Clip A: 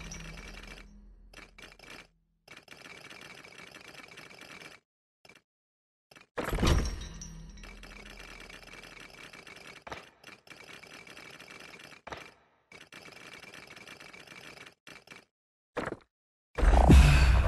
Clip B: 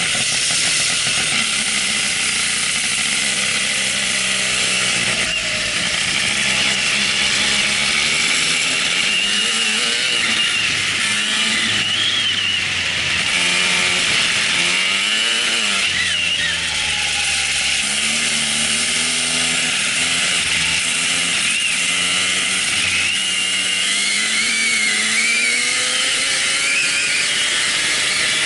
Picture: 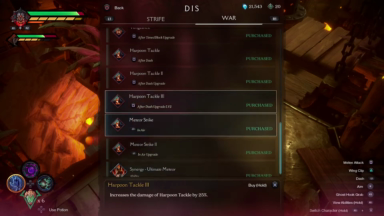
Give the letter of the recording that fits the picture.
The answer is A